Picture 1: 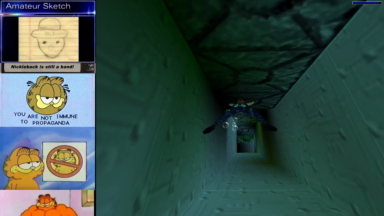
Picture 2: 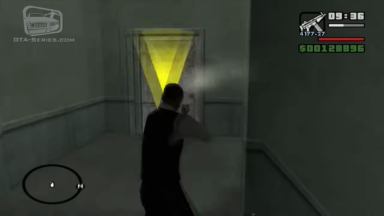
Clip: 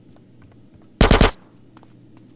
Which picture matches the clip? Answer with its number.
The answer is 2